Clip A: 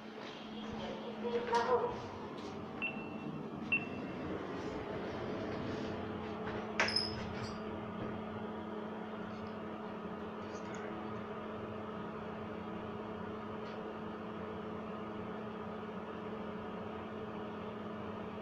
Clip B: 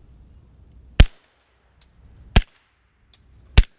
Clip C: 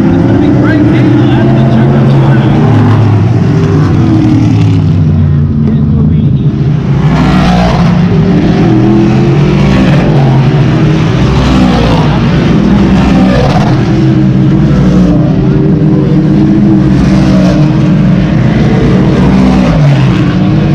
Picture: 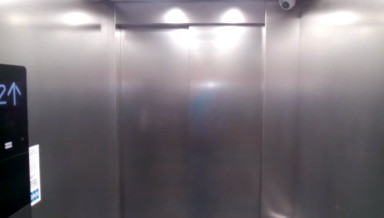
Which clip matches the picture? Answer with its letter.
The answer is A